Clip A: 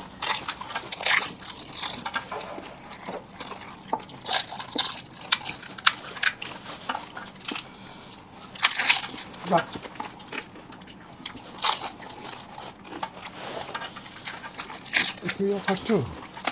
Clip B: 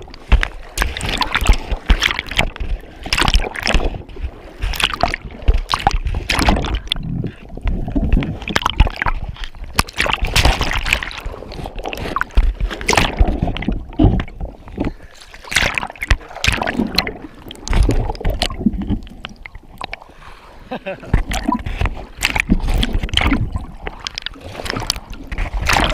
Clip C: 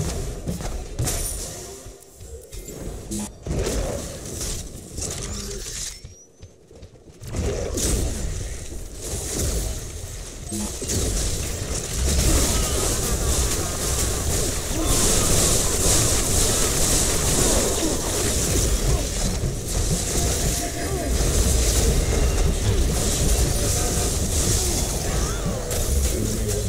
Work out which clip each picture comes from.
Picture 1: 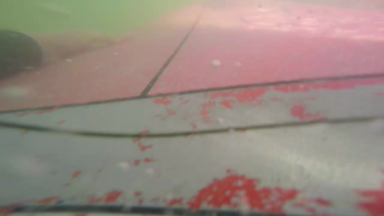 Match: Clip B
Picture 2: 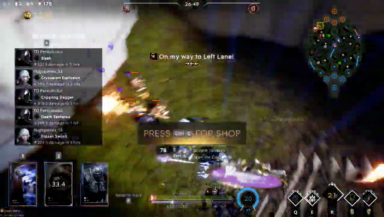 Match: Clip C